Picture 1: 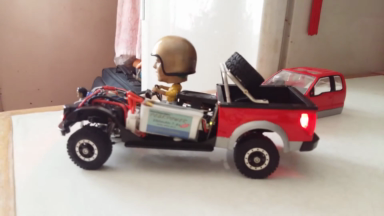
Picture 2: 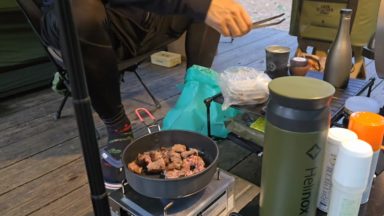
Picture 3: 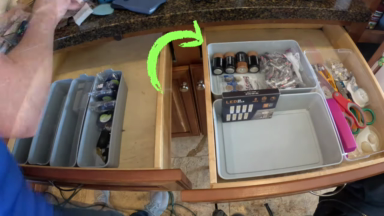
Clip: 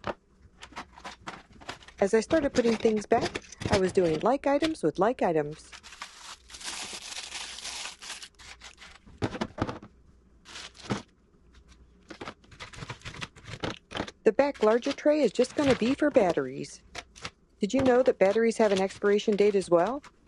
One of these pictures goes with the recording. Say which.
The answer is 3